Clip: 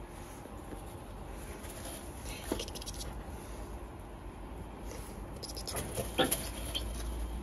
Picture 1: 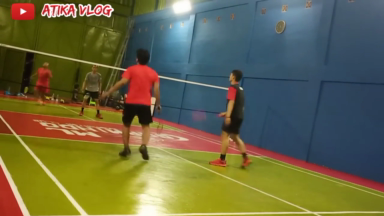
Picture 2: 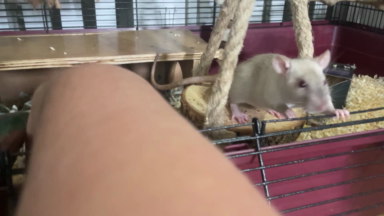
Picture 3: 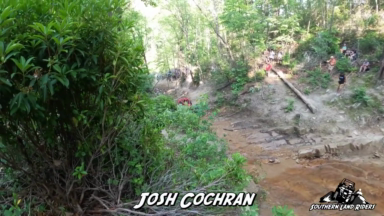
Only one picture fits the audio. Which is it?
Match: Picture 2